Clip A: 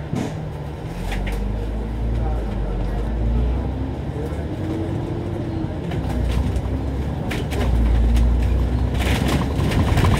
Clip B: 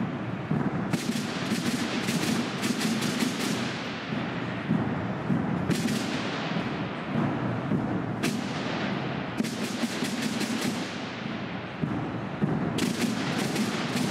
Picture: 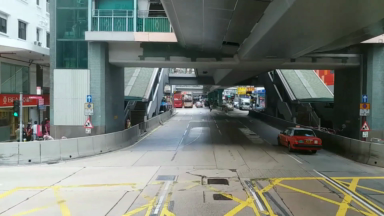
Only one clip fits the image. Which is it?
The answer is A